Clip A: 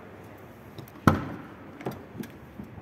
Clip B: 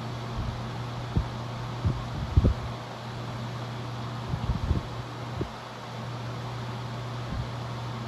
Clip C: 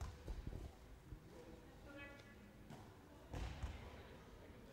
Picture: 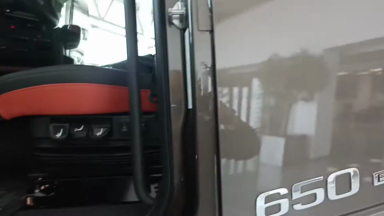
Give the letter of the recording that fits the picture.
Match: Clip A